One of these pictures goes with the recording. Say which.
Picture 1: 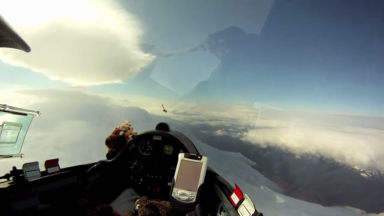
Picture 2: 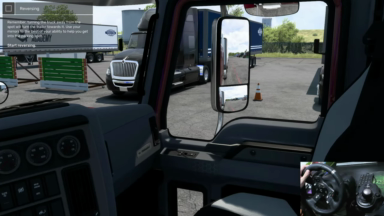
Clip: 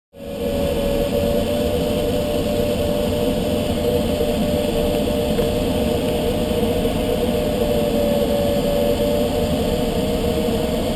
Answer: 1